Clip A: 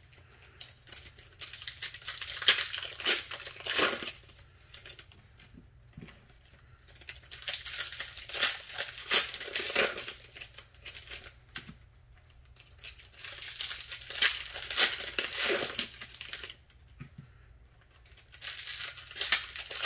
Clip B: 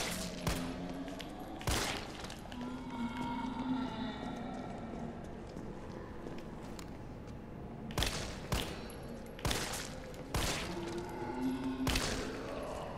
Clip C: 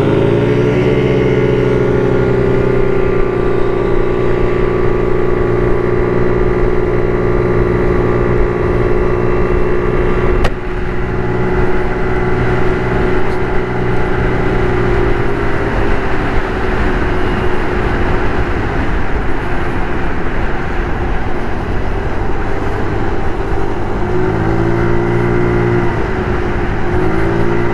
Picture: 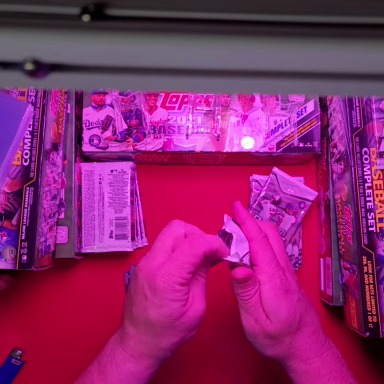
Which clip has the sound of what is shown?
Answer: A